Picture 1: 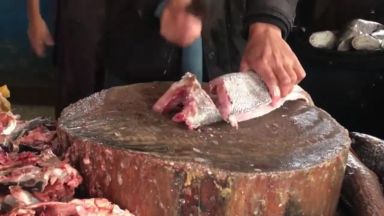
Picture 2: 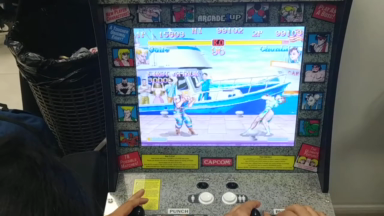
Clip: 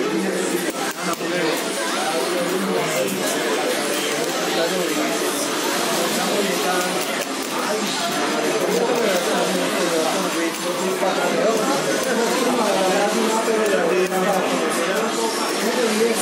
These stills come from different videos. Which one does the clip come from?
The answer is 2